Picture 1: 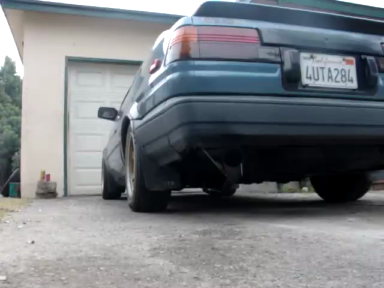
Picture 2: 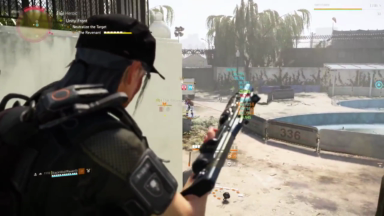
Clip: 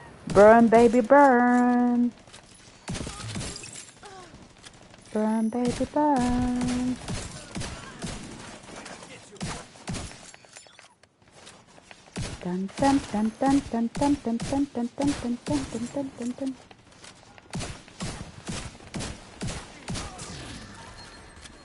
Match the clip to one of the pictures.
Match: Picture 2